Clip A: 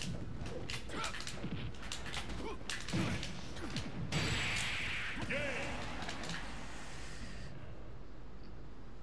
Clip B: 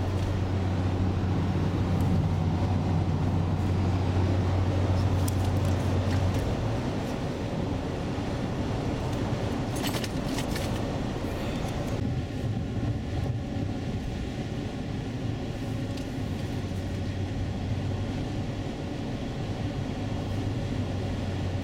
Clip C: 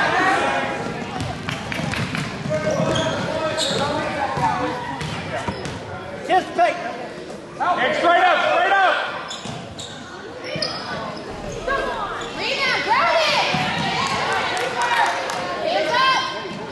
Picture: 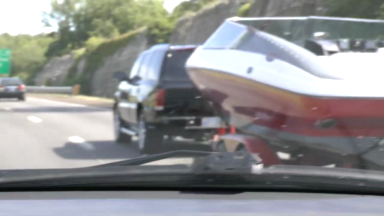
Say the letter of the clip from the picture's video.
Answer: B